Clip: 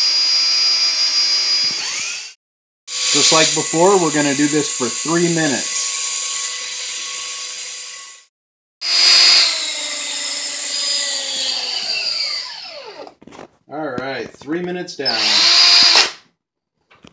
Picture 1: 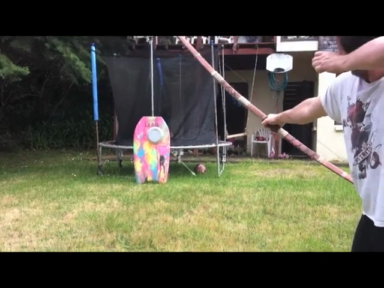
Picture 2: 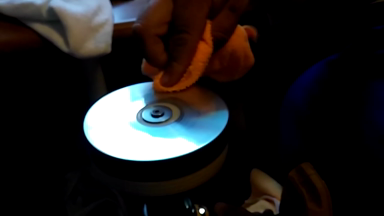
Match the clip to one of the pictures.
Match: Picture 2